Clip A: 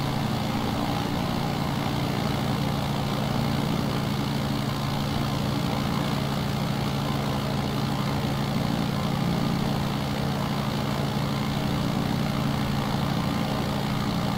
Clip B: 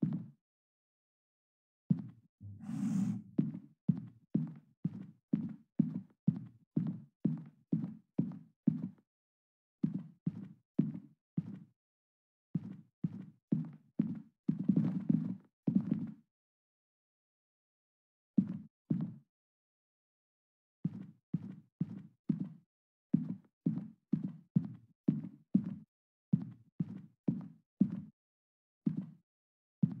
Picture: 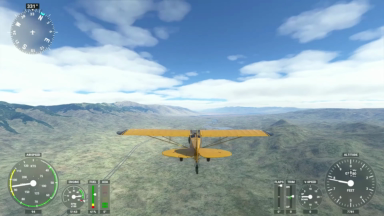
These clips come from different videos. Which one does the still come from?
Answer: A